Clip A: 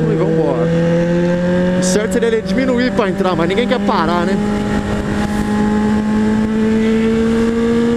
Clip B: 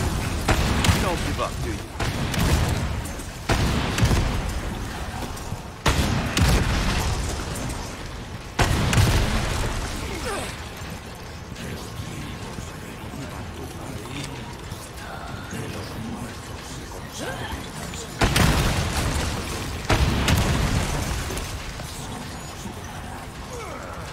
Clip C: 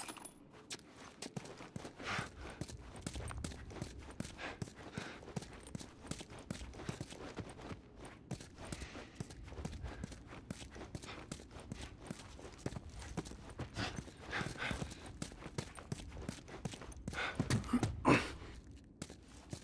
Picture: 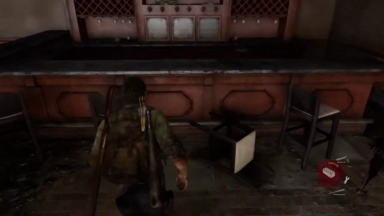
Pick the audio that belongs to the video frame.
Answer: C